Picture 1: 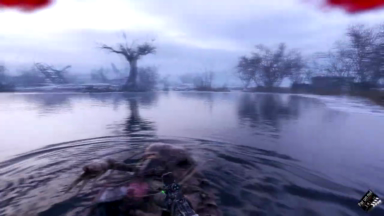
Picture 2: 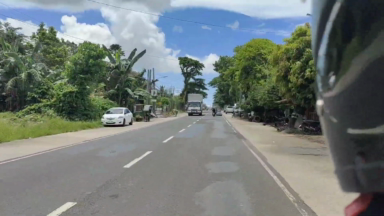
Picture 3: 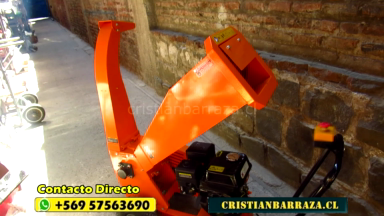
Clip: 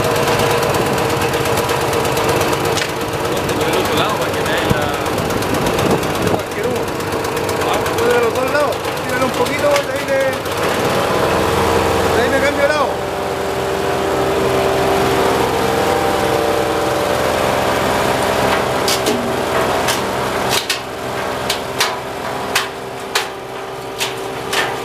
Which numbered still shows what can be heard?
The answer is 3